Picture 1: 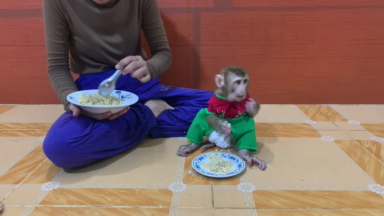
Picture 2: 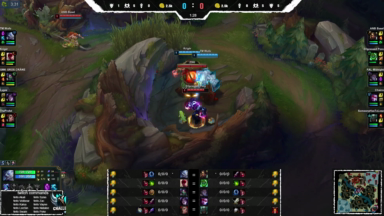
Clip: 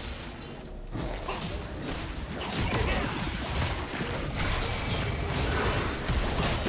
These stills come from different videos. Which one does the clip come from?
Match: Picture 2